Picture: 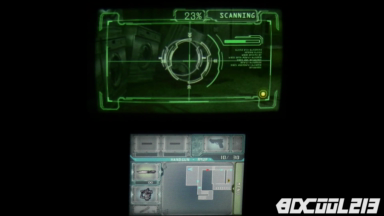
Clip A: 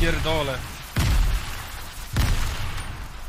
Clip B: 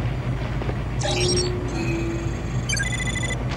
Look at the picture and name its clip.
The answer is B